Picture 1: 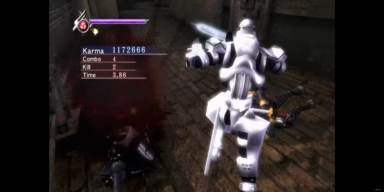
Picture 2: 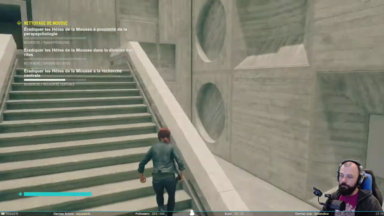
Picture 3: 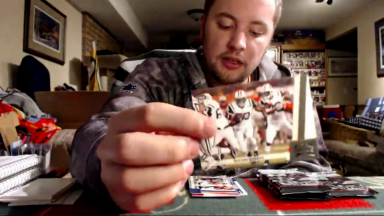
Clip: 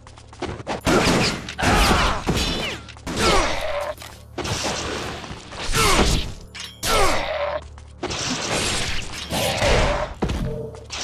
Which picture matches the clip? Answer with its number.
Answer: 1